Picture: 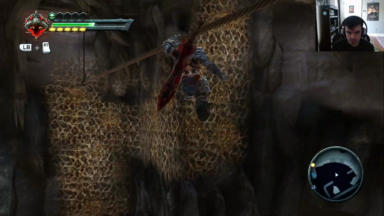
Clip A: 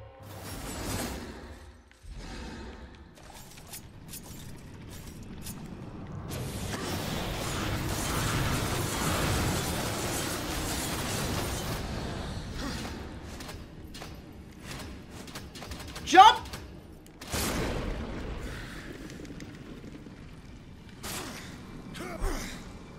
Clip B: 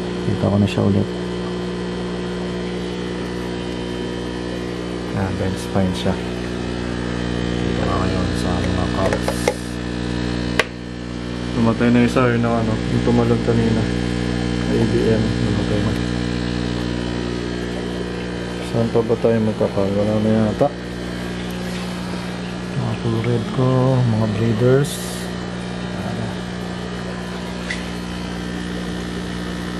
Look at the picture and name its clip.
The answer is A